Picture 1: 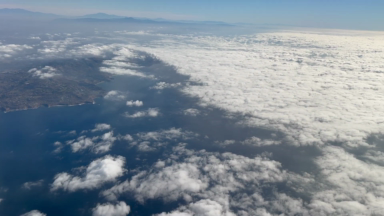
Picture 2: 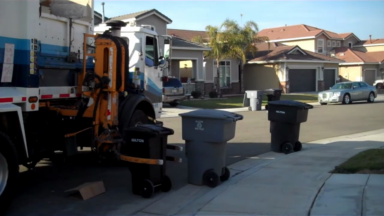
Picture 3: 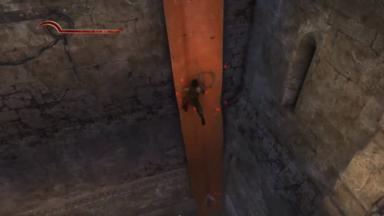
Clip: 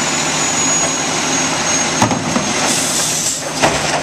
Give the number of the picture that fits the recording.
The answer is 2